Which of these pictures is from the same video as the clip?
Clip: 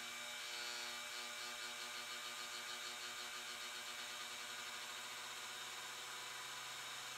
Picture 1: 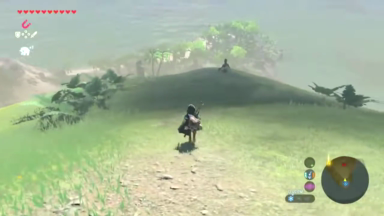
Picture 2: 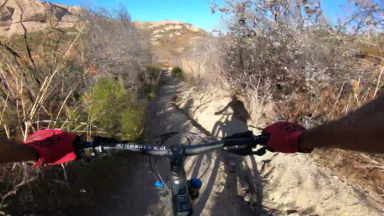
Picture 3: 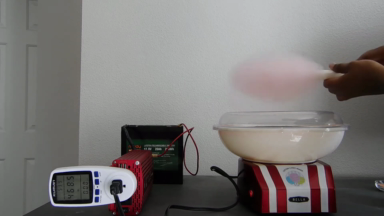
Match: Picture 3